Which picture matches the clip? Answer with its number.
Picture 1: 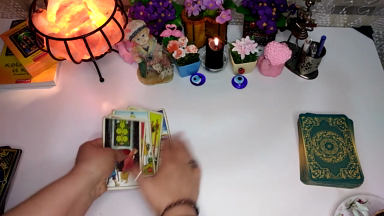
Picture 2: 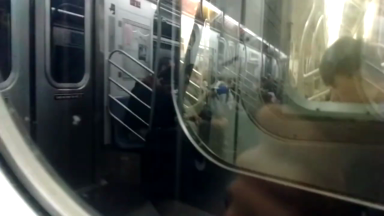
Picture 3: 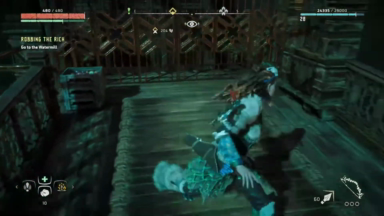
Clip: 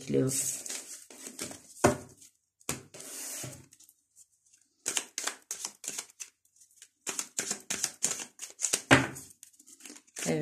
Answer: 1